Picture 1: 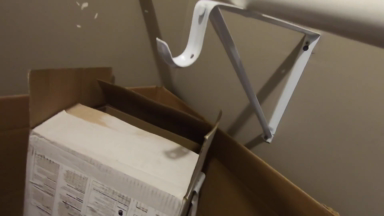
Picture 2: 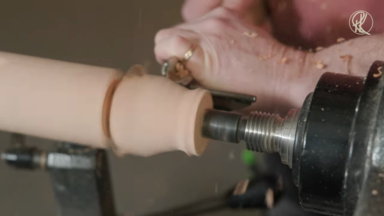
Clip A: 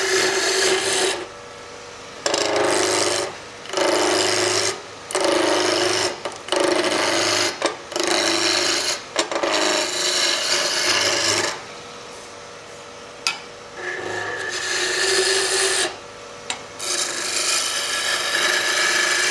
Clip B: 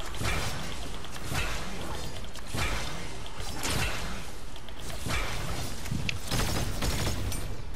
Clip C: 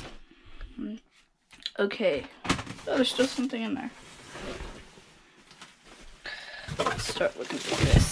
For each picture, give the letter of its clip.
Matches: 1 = C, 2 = A